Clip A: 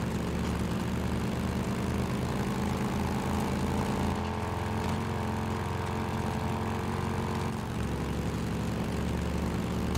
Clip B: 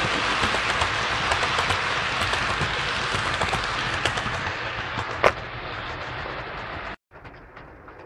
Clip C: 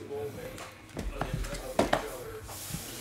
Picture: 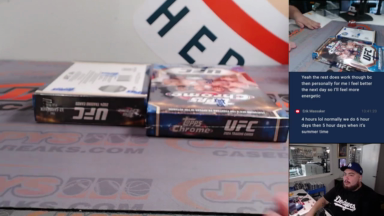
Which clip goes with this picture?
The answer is C